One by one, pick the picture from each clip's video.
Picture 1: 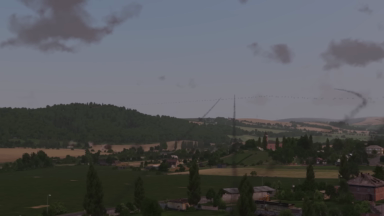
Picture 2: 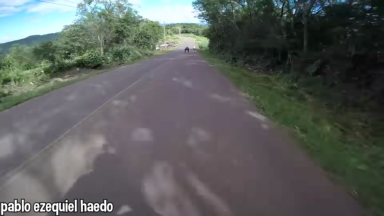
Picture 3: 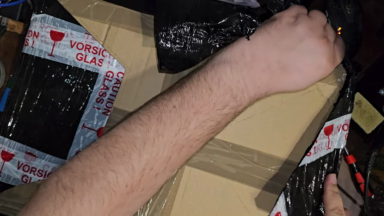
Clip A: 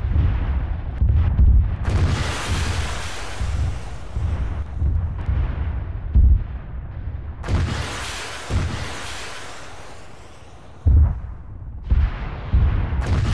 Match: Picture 1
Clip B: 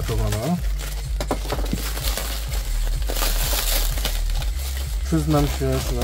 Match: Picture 3